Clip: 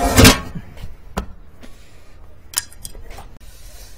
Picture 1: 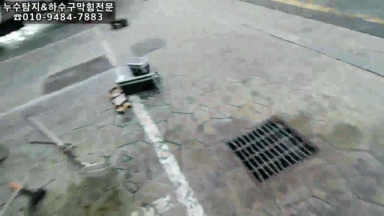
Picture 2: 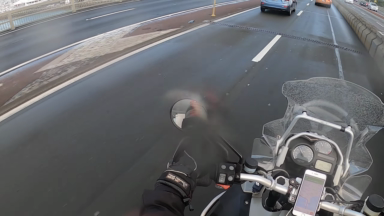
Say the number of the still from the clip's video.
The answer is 1